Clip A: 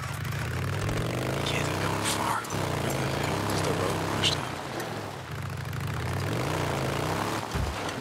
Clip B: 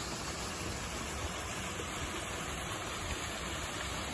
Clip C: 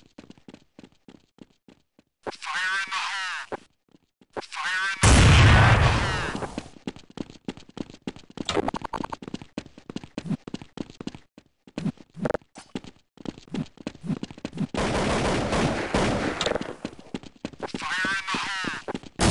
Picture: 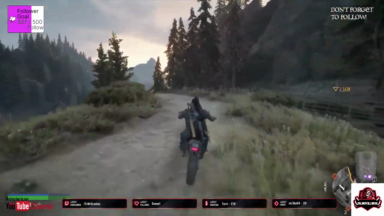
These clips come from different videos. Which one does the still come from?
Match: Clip A